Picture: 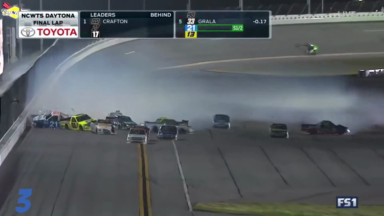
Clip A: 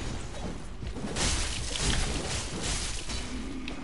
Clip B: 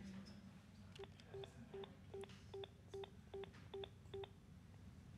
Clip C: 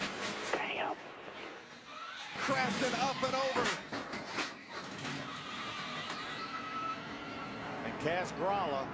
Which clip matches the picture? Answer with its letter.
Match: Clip C